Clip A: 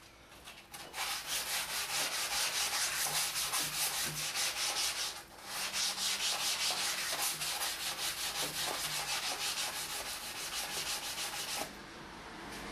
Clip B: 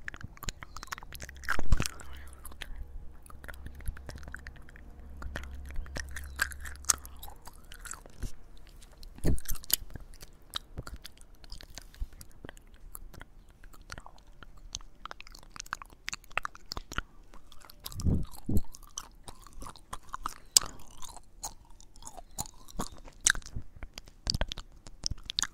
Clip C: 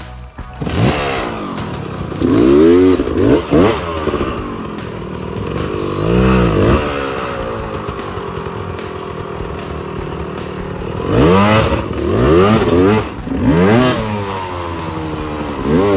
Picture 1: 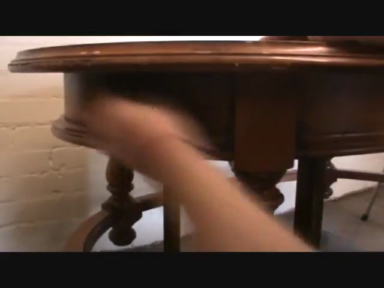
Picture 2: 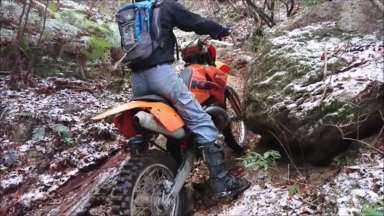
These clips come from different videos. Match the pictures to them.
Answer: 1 A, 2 C